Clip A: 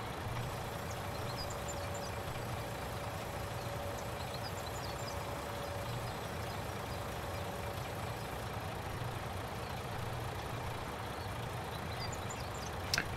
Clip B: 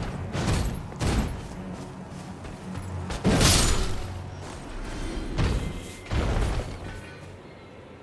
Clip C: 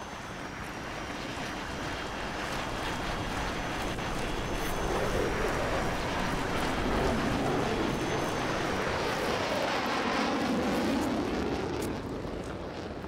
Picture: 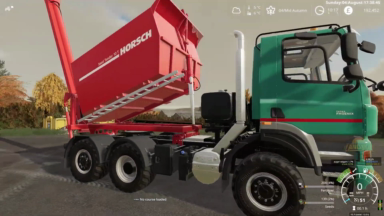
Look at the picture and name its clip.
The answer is A